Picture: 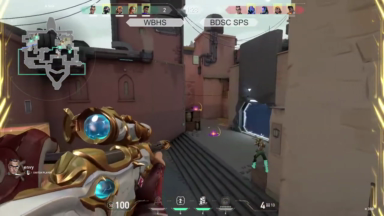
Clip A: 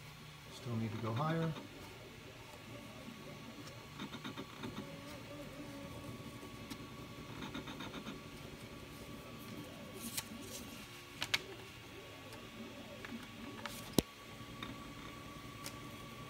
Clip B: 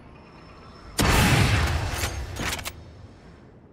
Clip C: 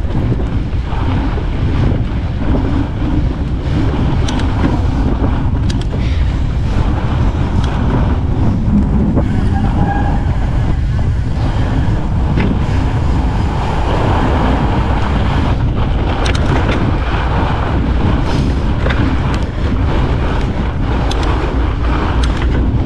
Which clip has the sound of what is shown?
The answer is B